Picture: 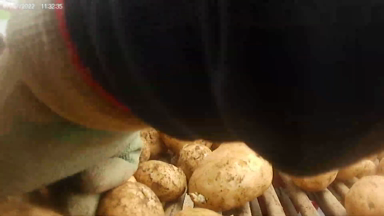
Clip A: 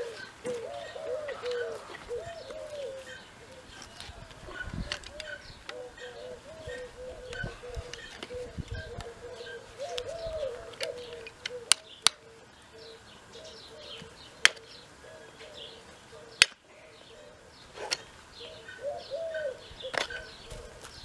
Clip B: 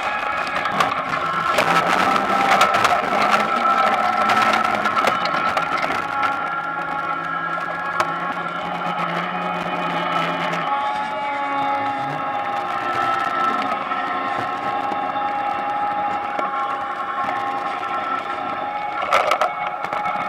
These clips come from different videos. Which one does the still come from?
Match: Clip B